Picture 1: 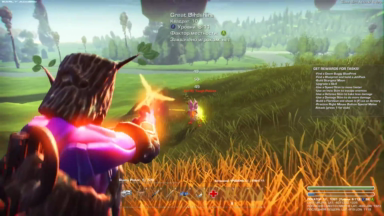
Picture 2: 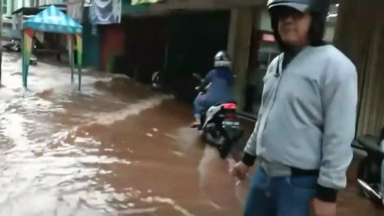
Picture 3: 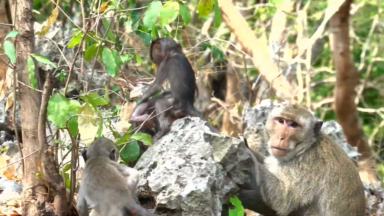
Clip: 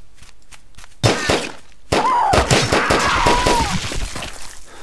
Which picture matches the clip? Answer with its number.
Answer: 1